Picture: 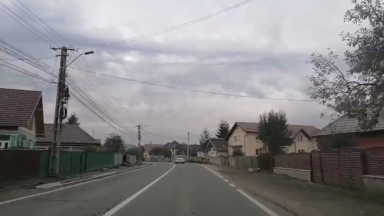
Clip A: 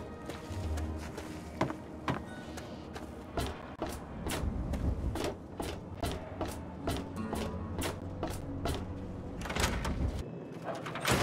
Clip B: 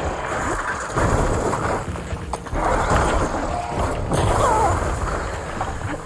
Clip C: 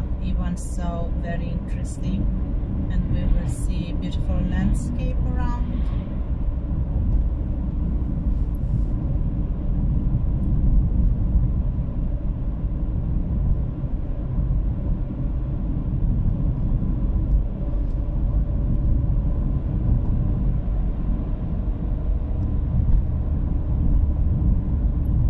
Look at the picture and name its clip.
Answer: C